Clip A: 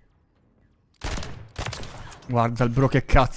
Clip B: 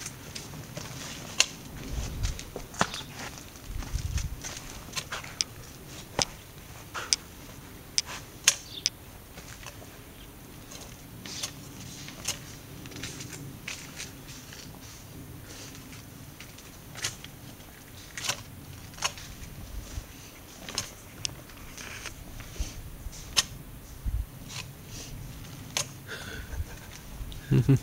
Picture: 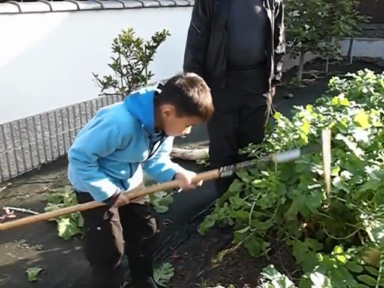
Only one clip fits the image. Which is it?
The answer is B